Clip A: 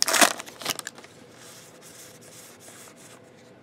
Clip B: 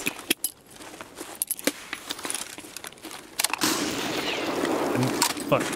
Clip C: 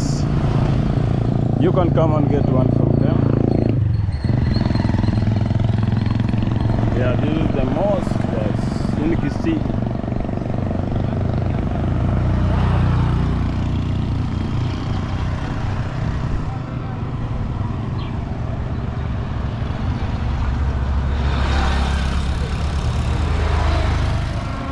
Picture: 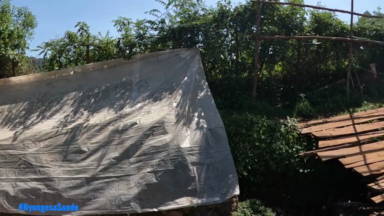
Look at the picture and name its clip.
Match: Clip C